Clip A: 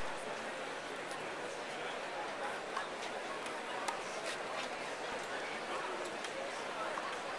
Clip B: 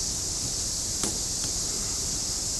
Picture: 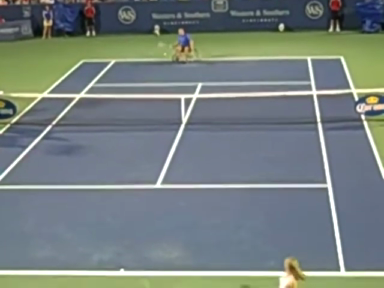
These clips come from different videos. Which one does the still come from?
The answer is A